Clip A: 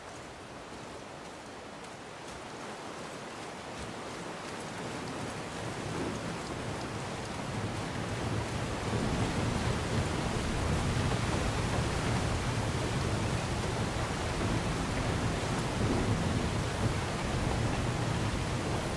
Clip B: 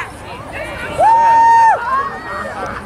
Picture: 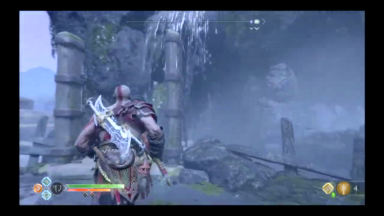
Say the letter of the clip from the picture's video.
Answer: A